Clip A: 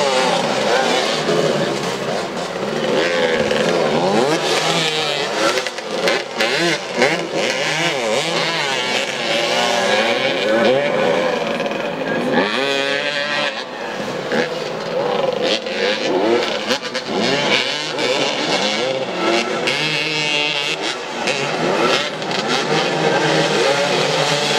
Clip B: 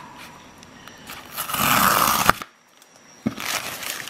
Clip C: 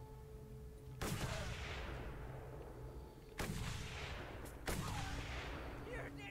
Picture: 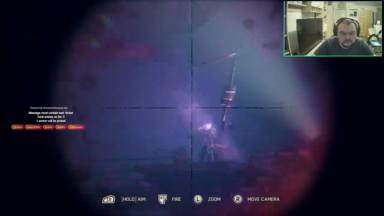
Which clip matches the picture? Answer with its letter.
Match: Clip C